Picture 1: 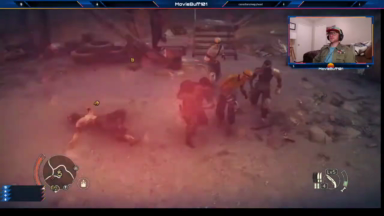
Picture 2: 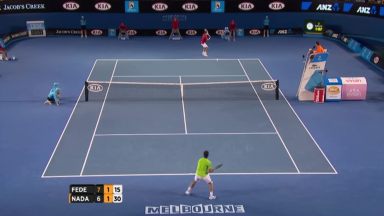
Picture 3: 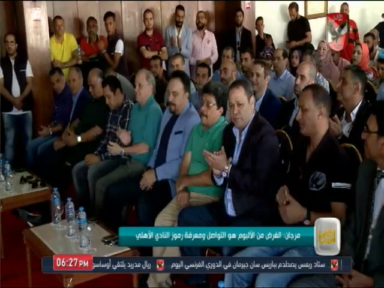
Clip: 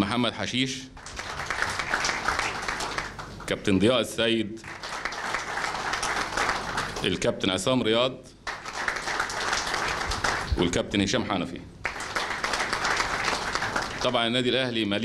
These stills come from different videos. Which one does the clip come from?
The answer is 3